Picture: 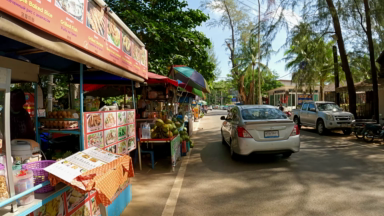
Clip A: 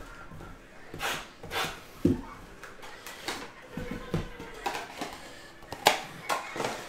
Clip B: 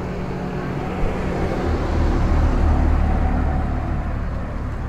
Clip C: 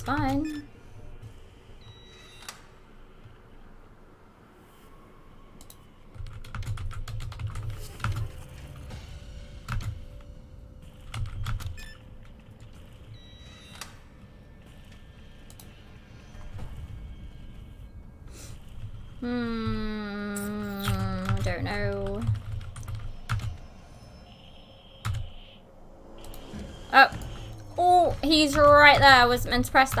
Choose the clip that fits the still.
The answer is B